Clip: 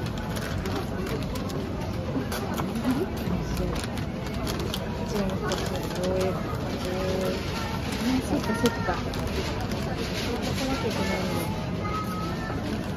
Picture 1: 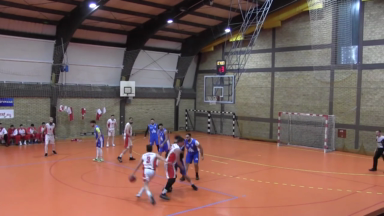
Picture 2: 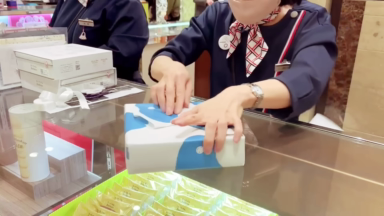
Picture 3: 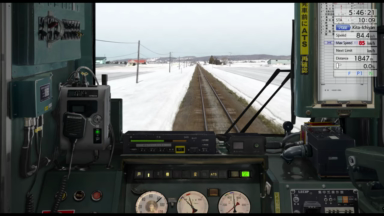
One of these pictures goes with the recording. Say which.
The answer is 2